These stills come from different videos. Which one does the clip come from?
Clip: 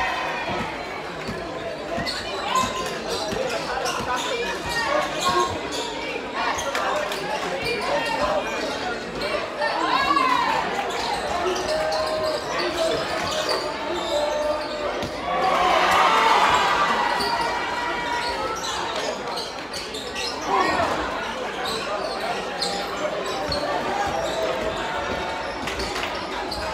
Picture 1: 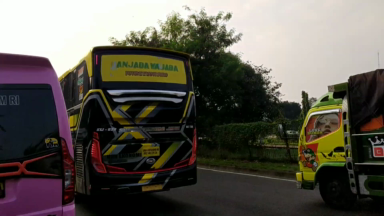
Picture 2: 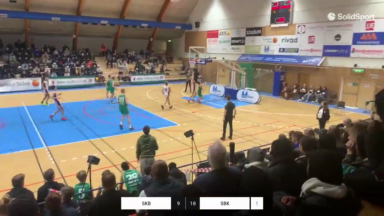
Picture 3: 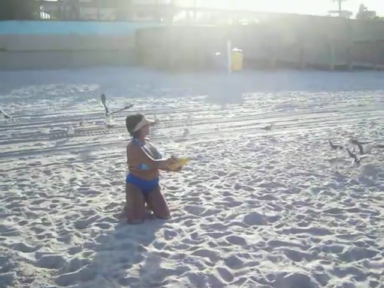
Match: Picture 2